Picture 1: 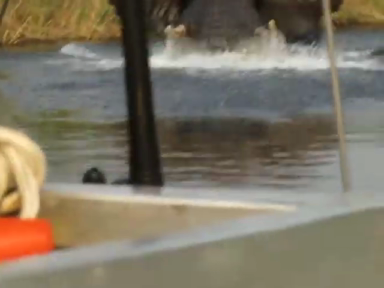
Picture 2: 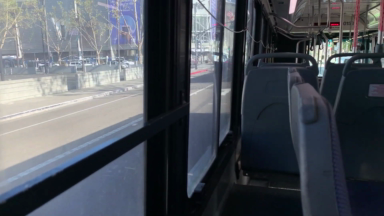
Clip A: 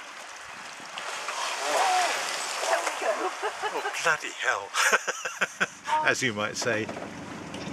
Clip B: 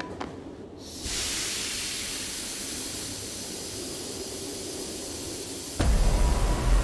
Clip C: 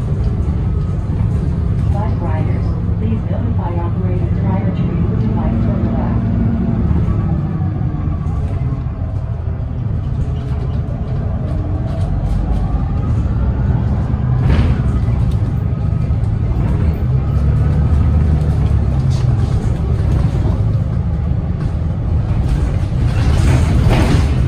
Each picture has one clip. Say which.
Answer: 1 A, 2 C